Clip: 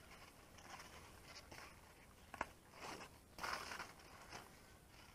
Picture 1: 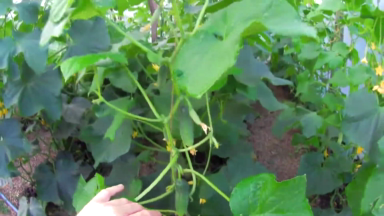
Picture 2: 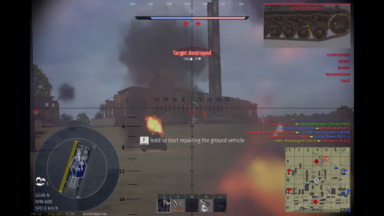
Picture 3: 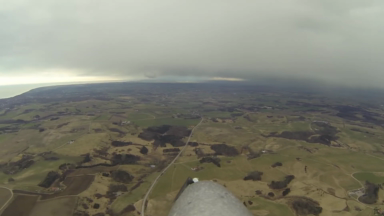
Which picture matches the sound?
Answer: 1